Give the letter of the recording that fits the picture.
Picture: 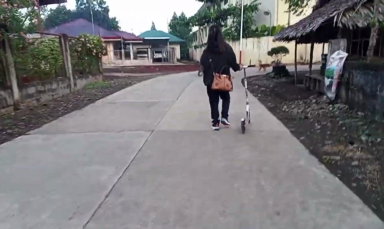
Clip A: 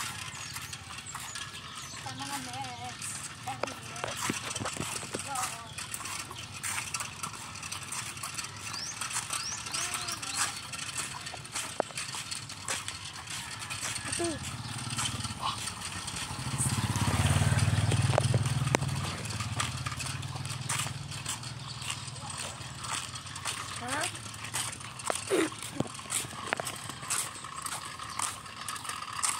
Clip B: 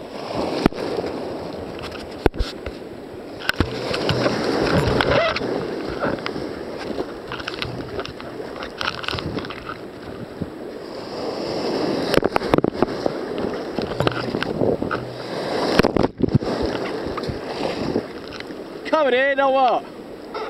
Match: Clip A